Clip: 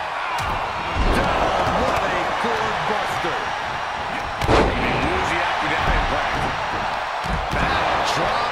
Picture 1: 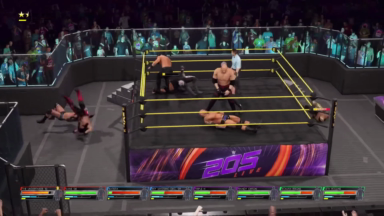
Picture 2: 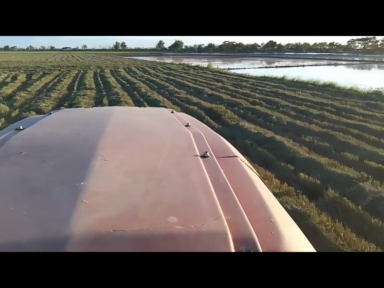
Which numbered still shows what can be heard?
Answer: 1